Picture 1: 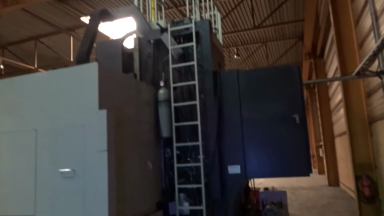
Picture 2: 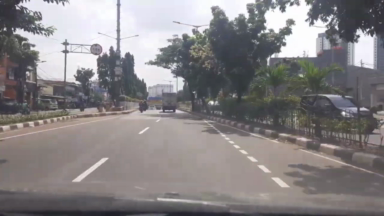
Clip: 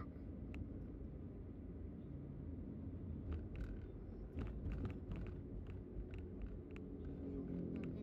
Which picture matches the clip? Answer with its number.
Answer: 2